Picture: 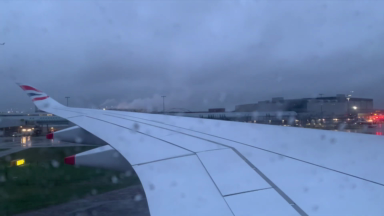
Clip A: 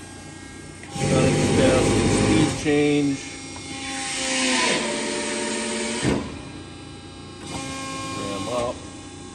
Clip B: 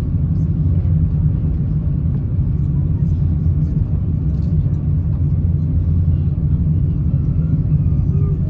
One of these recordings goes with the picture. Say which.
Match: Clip B